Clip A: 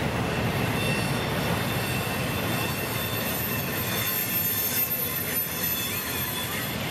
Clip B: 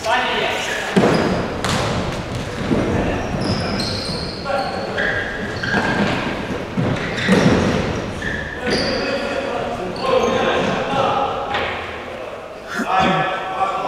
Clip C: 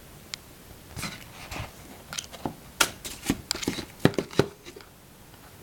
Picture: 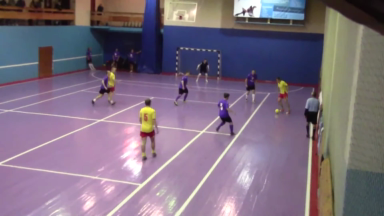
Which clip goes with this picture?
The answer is B